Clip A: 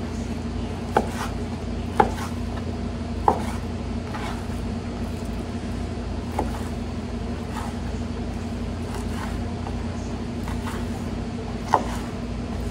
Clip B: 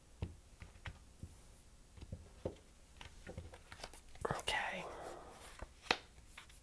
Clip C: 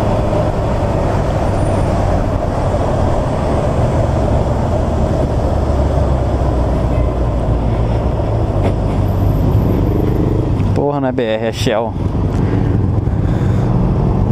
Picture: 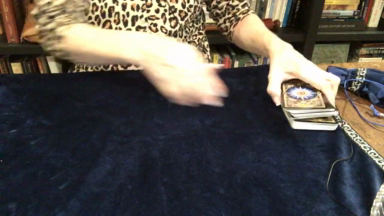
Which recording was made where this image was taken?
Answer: B